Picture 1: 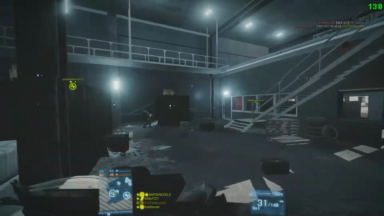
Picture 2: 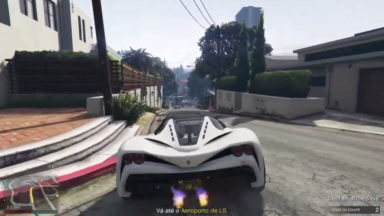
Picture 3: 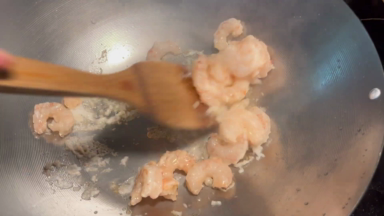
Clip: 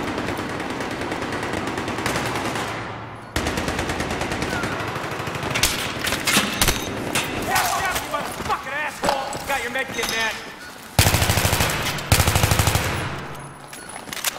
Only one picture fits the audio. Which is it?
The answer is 1